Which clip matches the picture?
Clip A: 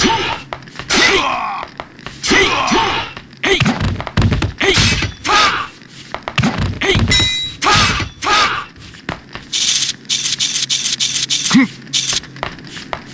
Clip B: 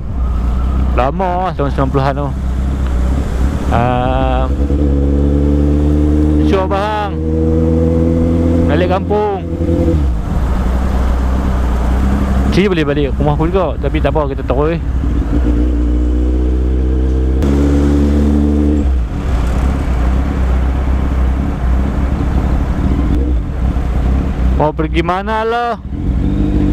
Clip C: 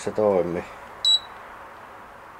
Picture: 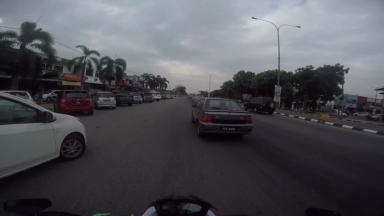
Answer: B